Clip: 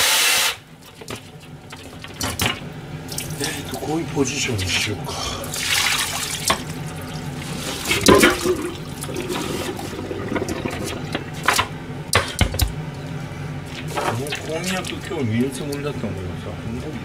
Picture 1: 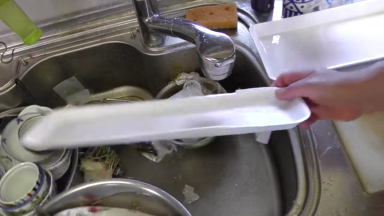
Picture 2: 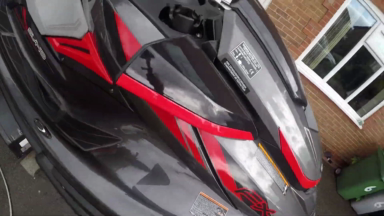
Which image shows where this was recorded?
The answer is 1